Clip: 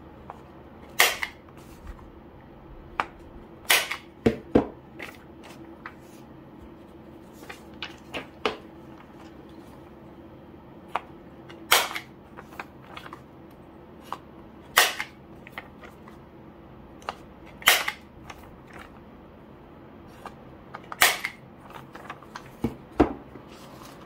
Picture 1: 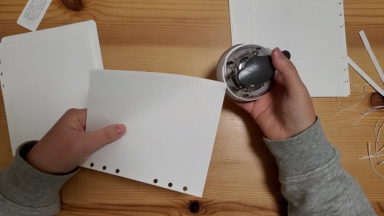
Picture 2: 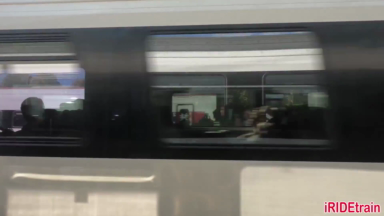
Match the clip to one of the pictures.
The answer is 1